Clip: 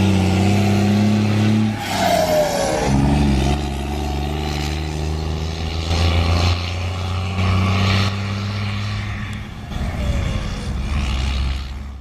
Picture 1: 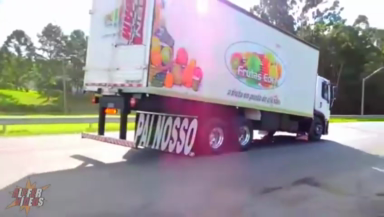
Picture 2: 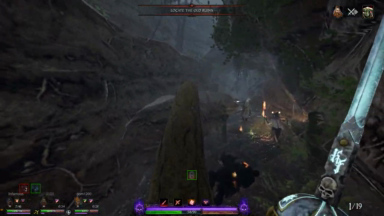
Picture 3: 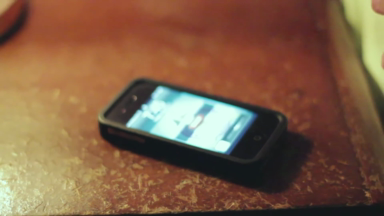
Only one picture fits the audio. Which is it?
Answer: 1